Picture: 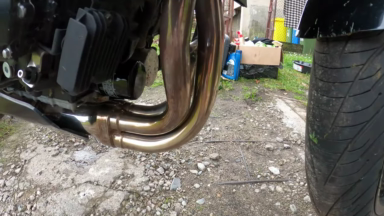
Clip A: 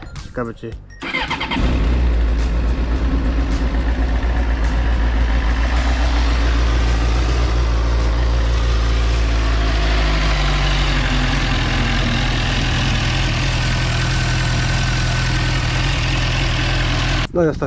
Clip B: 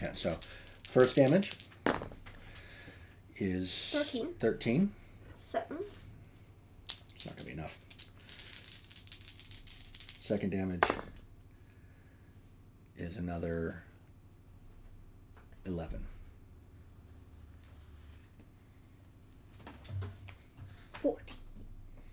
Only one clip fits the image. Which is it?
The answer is A